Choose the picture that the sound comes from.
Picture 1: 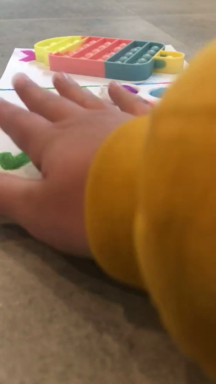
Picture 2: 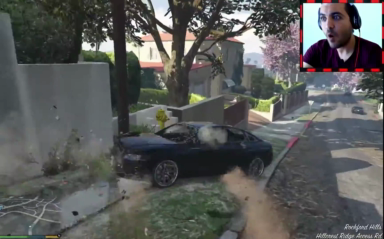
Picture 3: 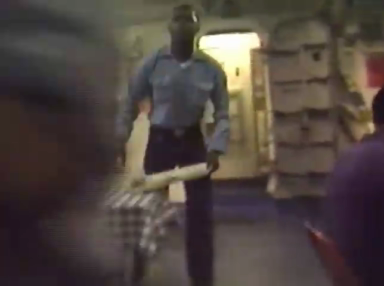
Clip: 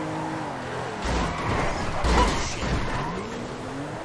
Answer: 2